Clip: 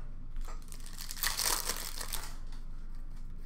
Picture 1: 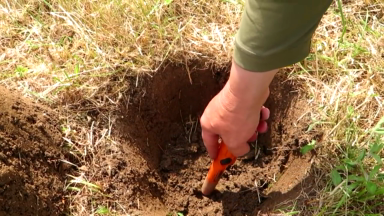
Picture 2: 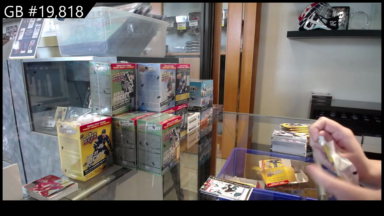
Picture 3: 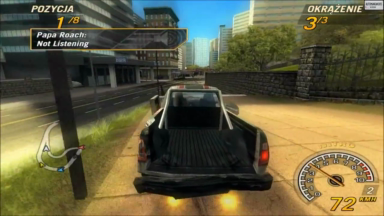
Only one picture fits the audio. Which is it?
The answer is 2